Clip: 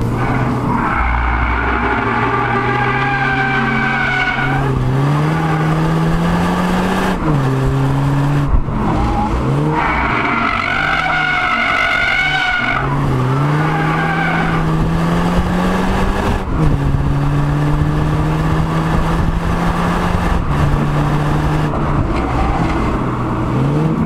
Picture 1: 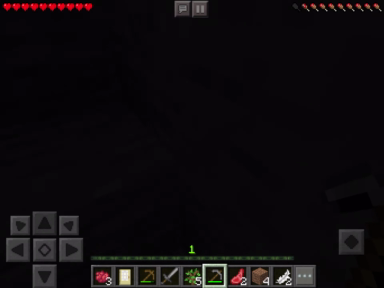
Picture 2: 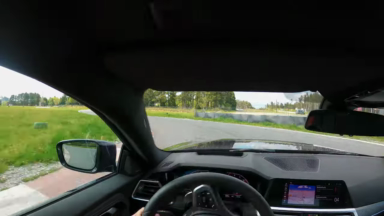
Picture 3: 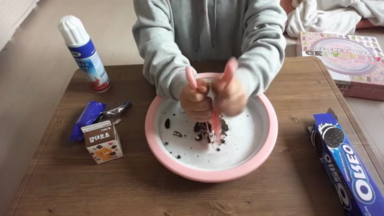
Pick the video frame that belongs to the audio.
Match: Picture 2